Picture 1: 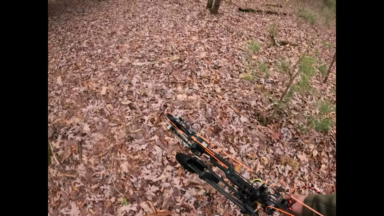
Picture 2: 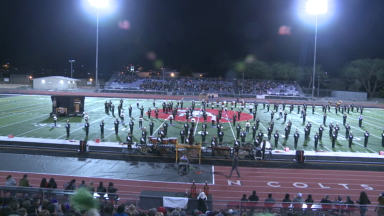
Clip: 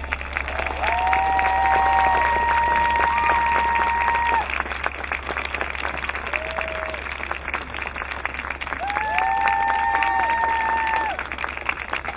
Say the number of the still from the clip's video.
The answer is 2